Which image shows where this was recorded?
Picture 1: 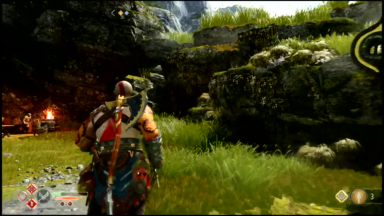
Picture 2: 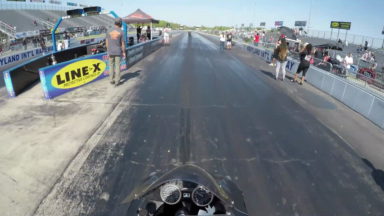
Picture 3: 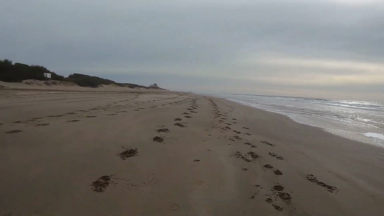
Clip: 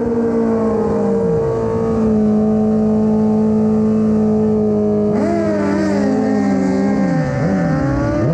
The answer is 2